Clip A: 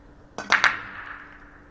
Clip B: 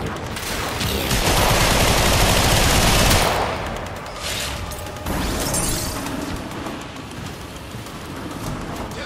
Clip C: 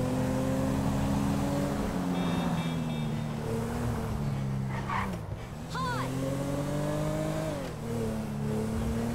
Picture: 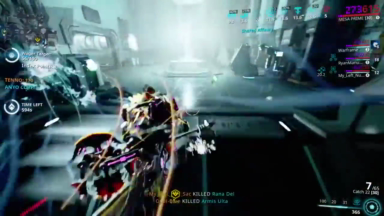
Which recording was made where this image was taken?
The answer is B